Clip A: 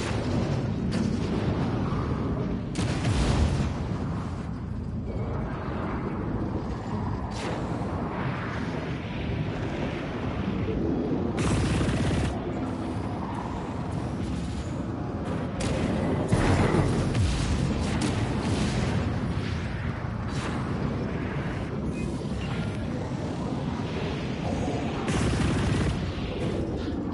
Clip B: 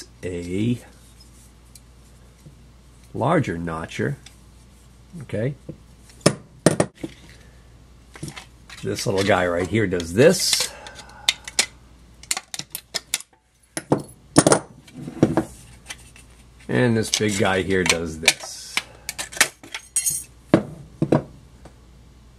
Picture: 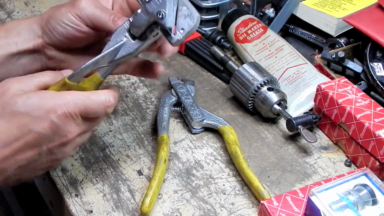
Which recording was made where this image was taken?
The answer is B